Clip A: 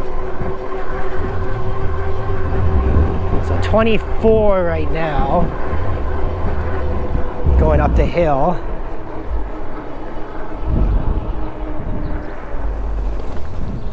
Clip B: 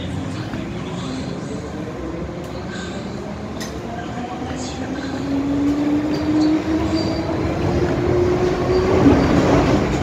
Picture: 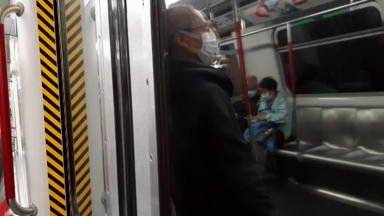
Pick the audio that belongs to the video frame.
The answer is B